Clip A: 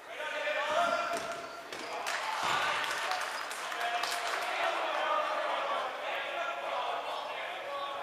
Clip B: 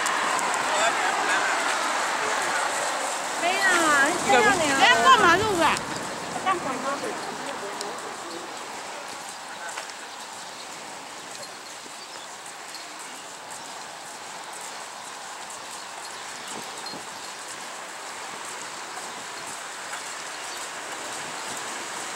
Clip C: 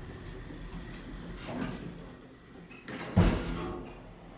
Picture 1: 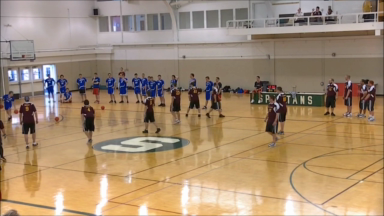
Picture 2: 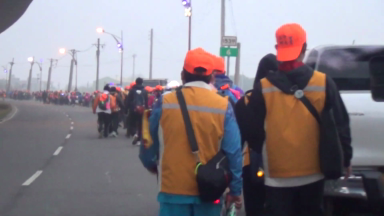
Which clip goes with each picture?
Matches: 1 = A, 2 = B